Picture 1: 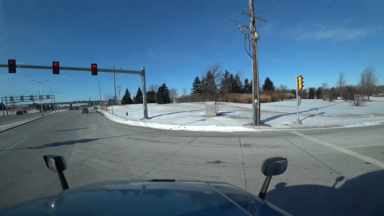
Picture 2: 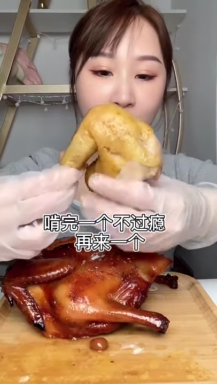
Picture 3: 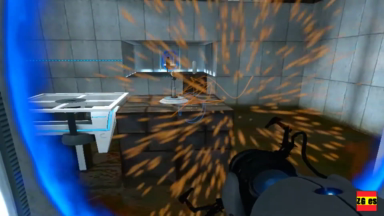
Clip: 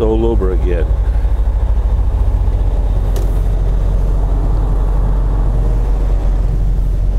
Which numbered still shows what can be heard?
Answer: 1